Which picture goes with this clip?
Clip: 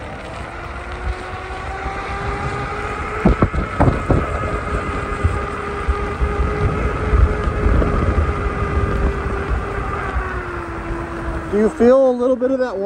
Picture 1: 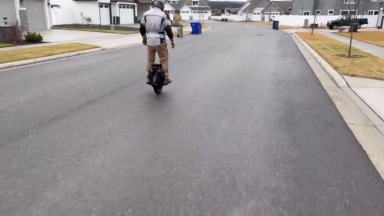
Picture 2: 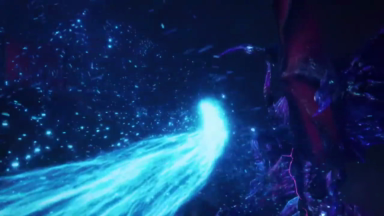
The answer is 1